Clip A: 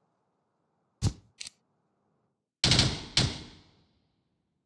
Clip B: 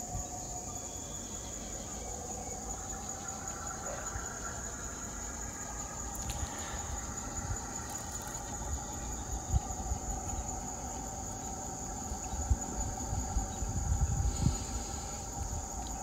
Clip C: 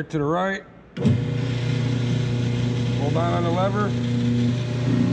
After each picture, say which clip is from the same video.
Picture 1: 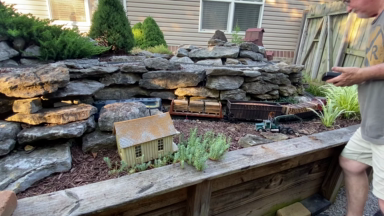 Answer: B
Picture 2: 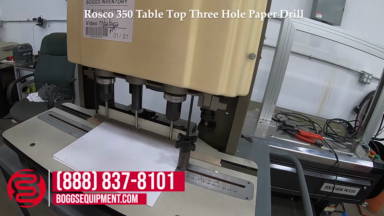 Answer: C